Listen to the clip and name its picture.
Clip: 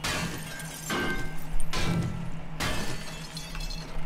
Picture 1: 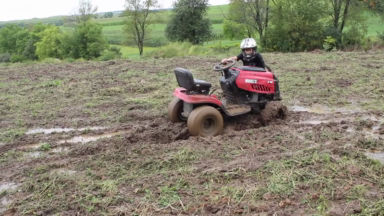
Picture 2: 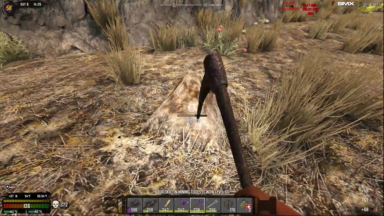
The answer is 2